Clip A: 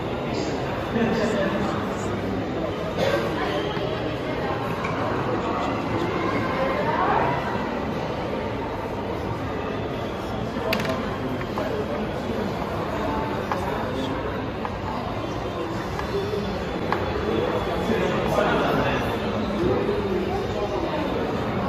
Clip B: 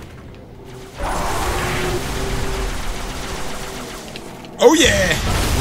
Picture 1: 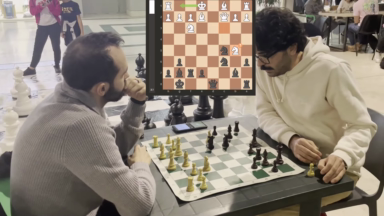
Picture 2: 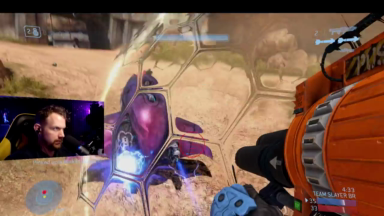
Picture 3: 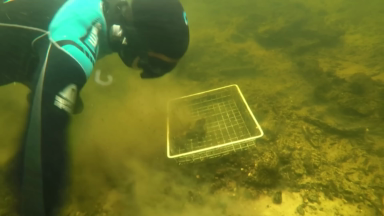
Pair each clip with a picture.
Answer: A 1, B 2